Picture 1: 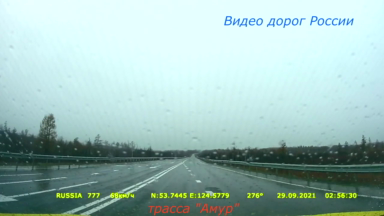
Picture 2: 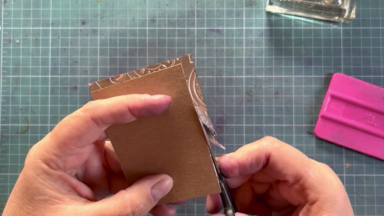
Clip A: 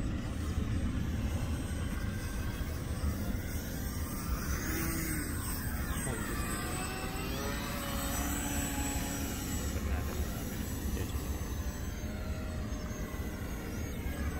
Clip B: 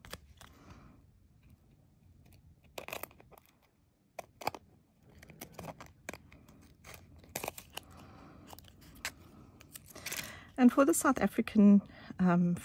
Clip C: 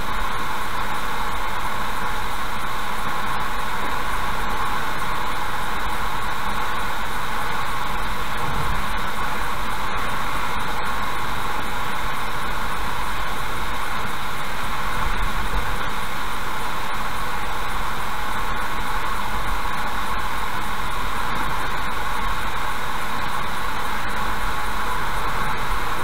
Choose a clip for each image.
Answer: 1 C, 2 B